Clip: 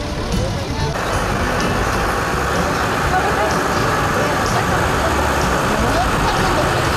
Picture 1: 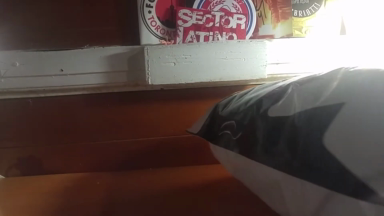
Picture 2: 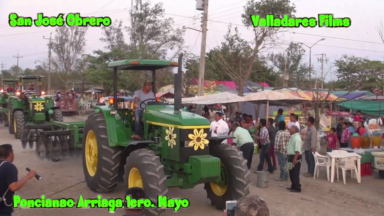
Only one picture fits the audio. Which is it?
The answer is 2